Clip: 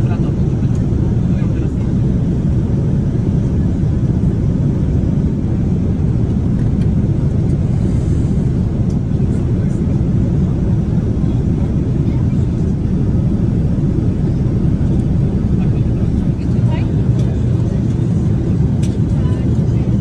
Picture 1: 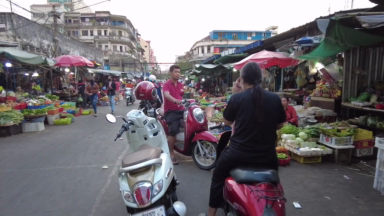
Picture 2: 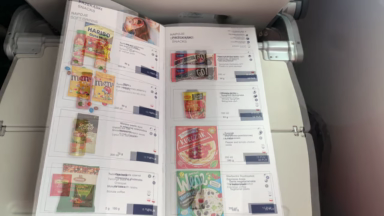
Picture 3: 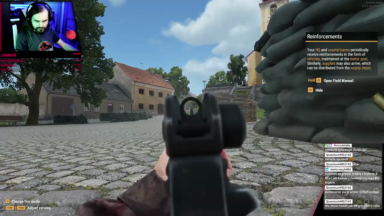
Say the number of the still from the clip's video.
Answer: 2